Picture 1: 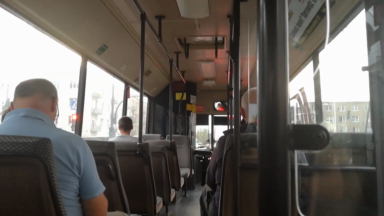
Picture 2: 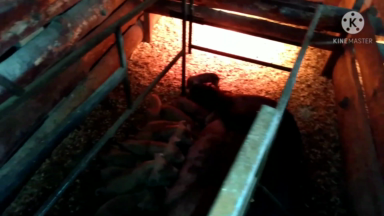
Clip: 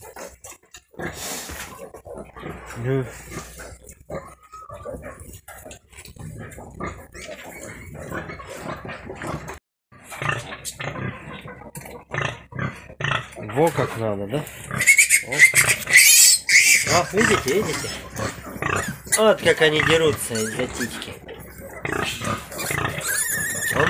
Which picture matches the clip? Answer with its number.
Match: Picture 2